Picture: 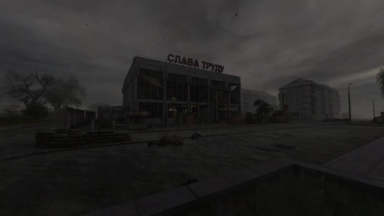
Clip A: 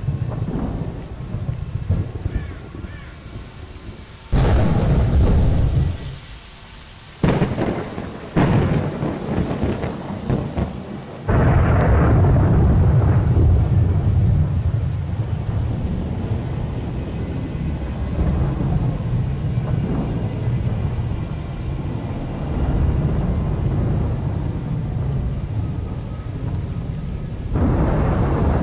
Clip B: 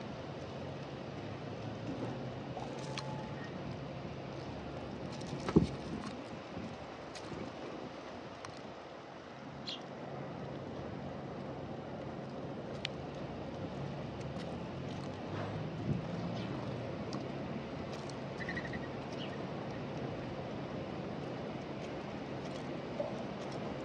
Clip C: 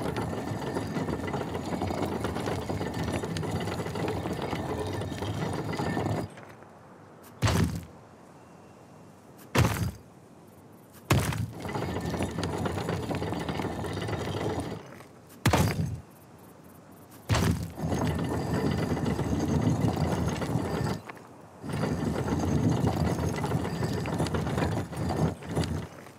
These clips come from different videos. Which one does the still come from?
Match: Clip A